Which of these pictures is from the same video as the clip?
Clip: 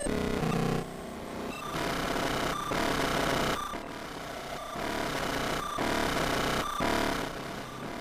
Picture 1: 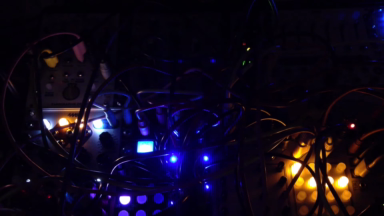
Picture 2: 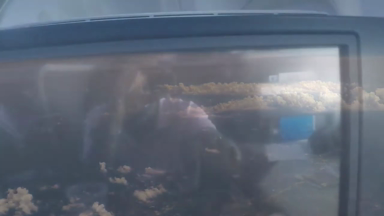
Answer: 1